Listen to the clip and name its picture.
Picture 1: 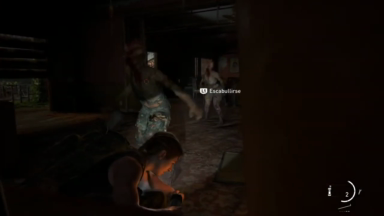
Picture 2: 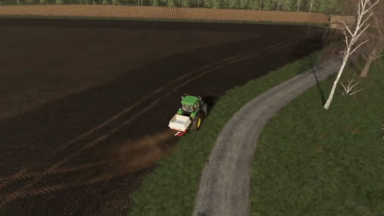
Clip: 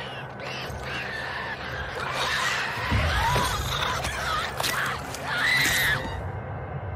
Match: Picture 1